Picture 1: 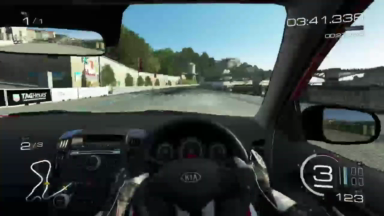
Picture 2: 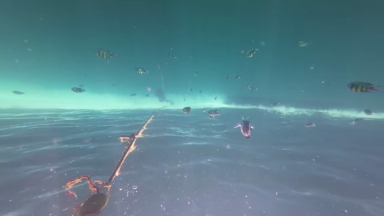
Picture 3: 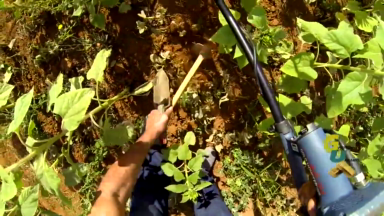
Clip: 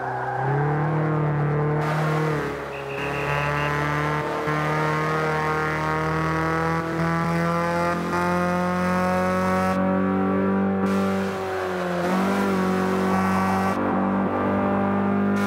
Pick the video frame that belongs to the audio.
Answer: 1